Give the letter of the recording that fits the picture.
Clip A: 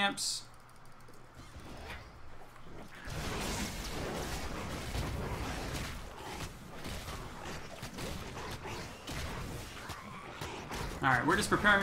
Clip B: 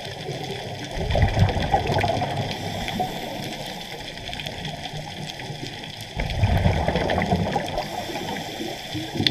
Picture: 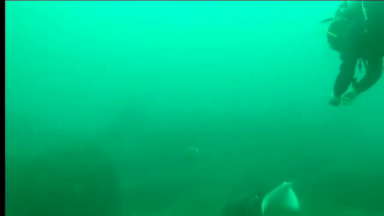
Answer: B